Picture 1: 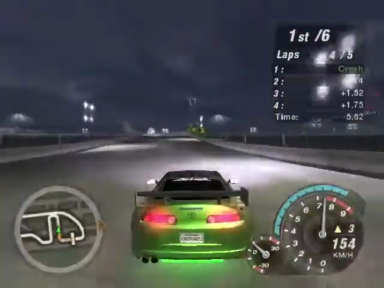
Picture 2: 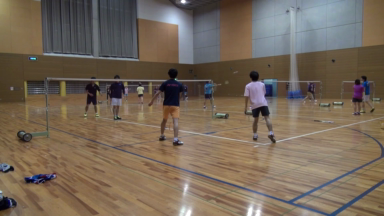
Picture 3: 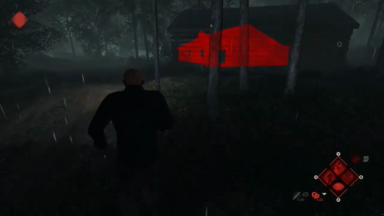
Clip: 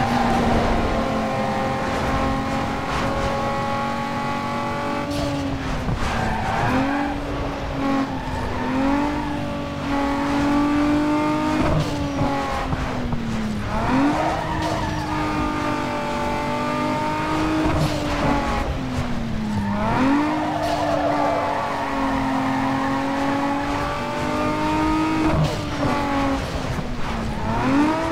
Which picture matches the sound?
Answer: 1